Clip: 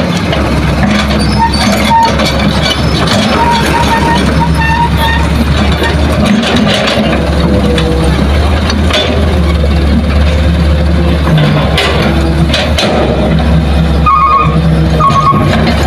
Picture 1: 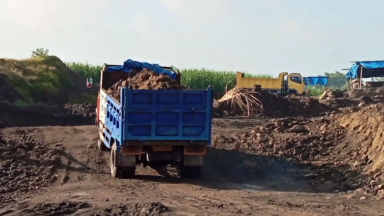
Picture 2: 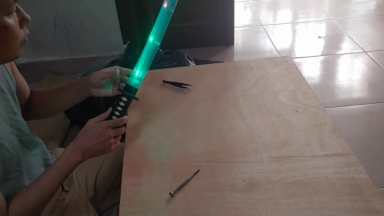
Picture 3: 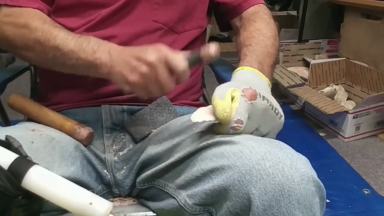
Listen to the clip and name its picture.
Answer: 1